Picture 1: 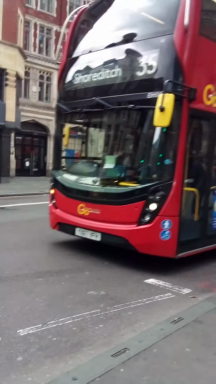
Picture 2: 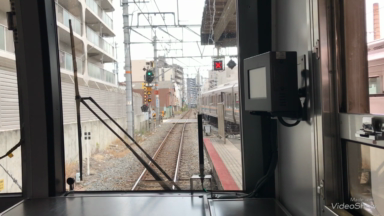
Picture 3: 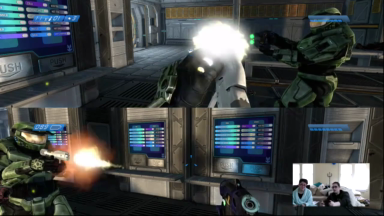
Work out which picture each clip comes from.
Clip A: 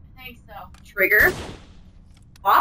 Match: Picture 3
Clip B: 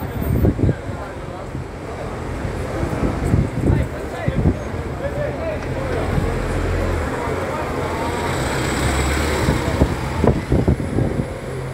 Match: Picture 1